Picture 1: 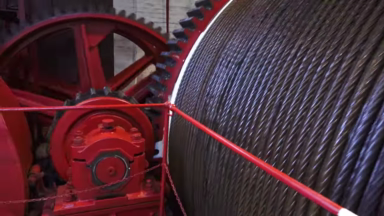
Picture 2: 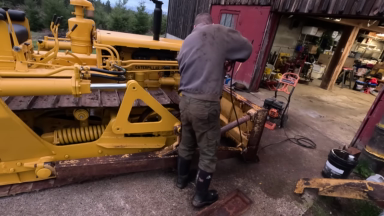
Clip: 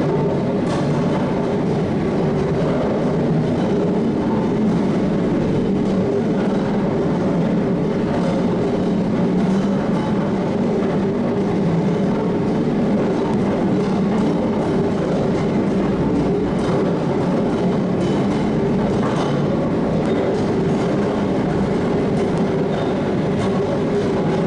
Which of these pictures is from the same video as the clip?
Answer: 1